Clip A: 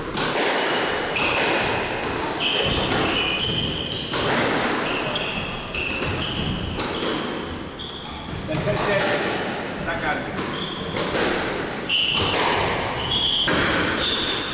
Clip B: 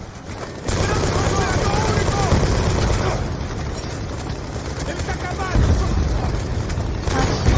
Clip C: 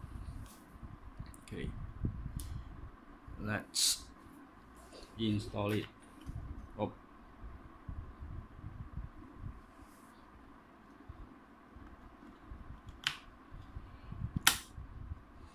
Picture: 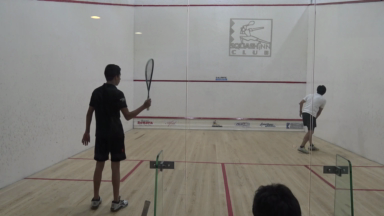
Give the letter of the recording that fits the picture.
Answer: A